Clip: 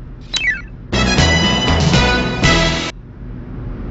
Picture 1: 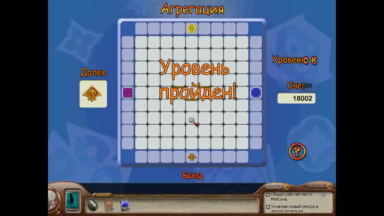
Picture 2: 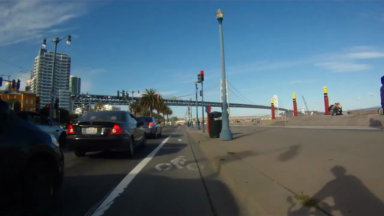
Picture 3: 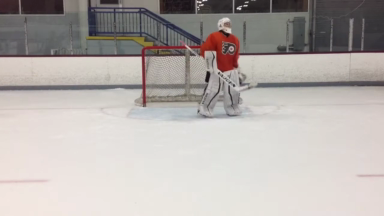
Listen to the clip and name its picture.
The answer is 1